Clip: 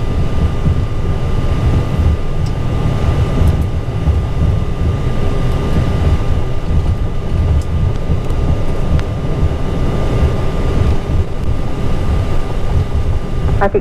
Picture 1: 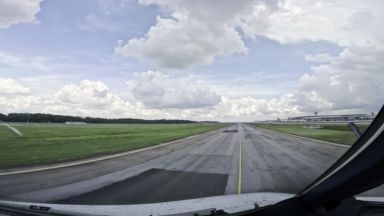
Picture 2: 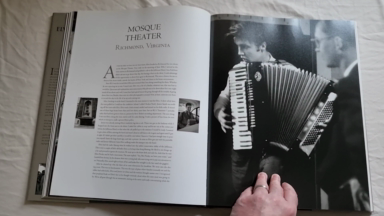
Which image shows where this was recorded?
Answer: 1